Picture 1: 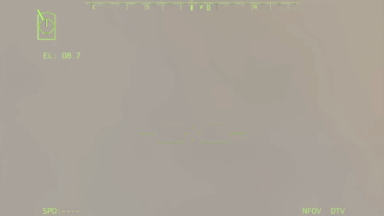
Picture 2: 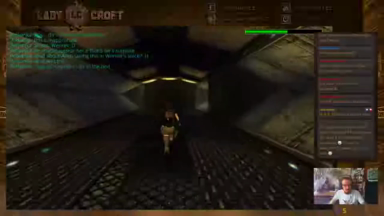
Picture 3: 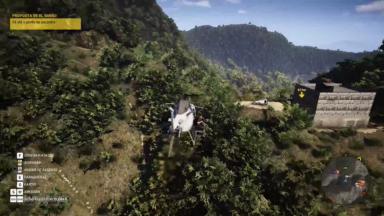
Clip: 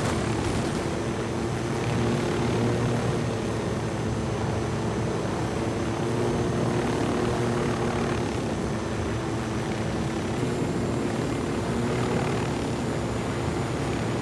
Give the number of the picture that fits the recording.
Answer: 3